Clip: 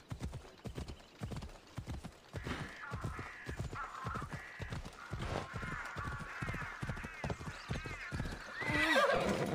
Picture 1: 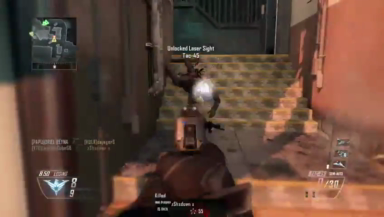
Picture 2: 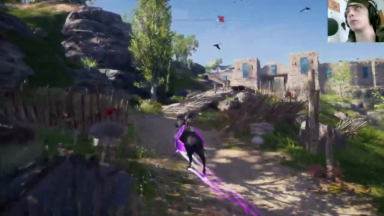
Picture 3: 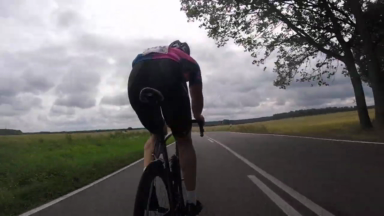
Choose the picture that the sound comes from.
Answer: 2